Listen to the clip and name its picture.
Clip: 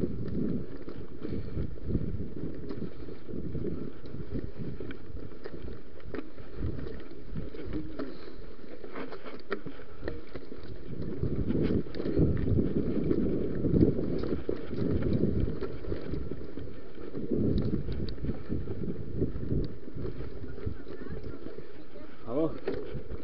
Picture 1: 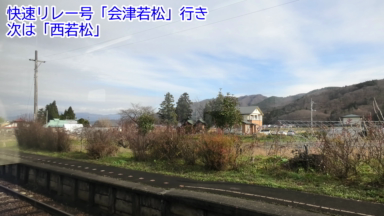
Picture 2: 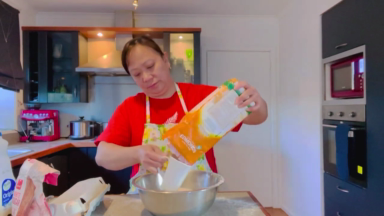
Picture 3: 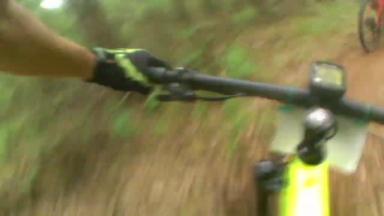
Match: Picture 3